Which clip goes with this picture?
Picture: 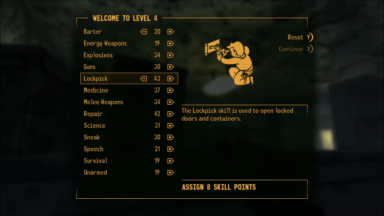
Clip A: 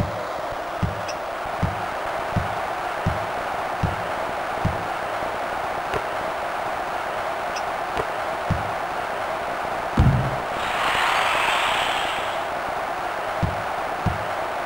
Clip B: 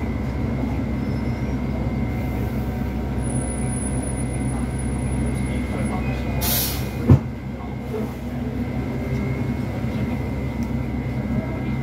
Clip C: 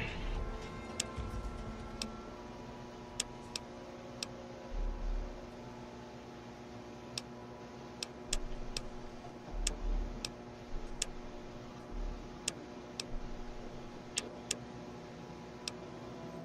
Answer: C